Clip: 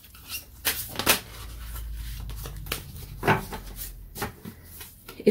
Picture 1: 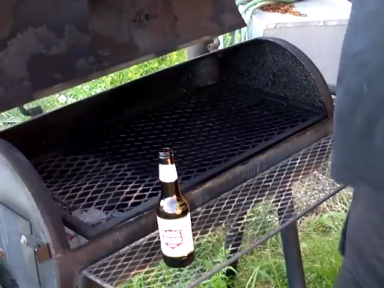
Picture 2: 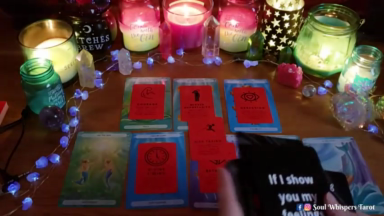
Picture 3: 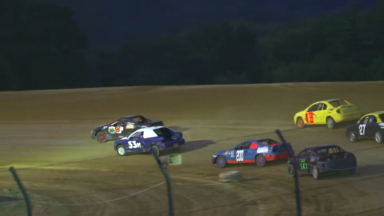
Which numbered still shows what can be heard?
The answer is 2